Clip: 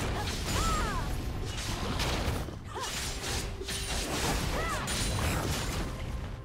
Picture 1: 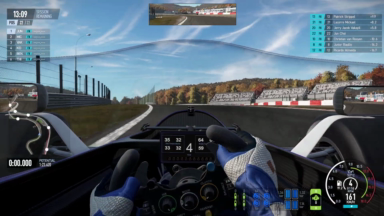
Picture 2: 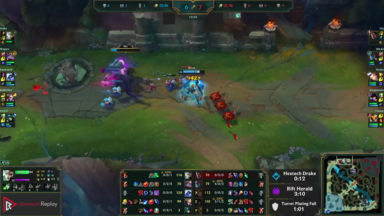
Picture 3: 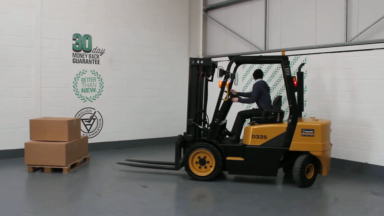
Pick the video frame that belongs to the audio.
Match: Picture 2